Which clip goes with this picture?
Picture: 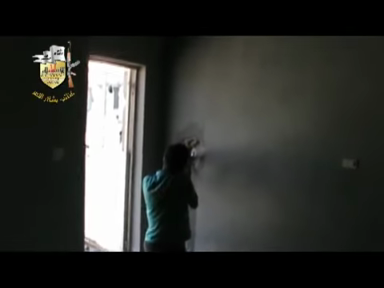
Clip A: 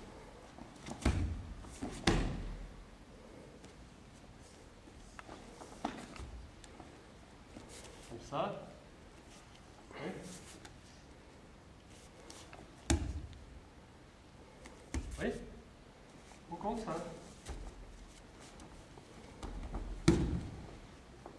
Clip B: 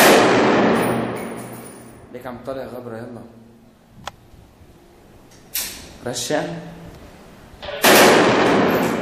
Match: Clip B